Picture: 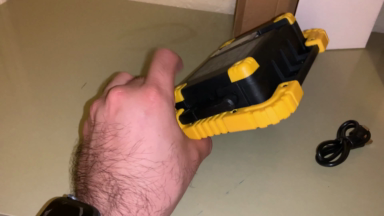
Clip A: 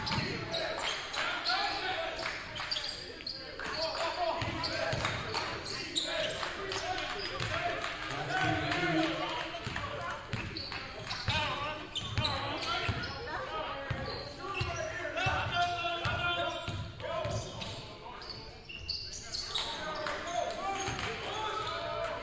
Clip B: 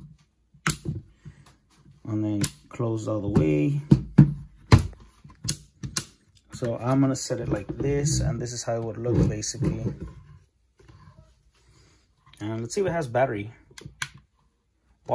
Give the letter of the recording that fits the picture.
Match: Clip B